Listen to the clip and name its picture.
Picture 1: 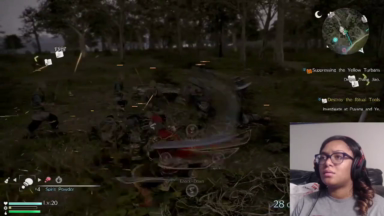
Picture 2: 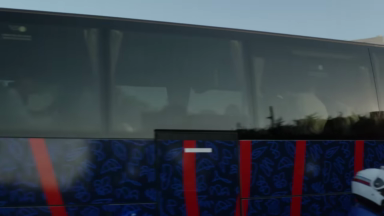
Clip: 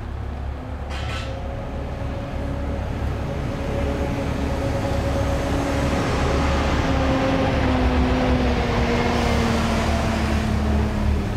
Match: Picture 2